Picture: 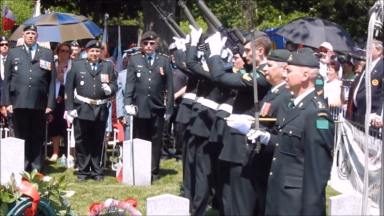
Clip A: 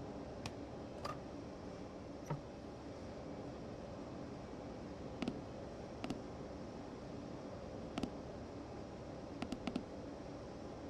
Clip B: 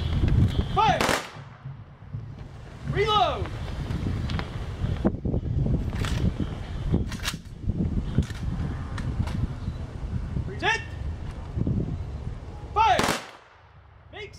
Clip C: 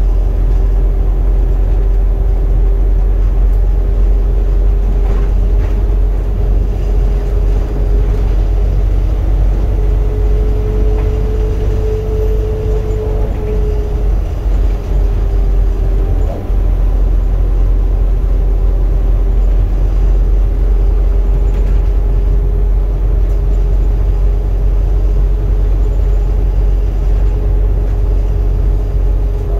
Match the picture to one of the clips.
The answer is B